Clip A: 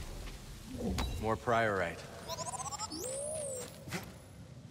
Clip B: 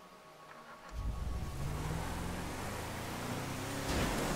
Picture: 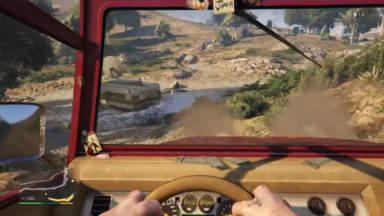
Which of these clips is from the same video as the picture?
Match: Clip B